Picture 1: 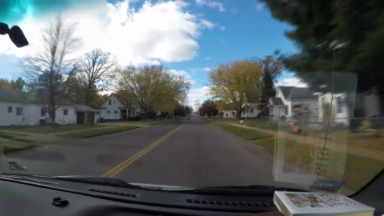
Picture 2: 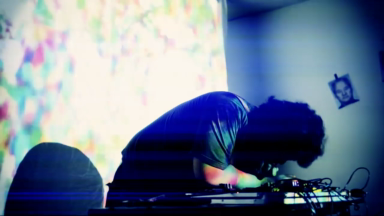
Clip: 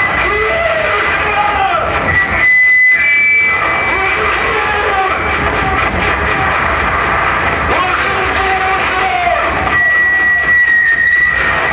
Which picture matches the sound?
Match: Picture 2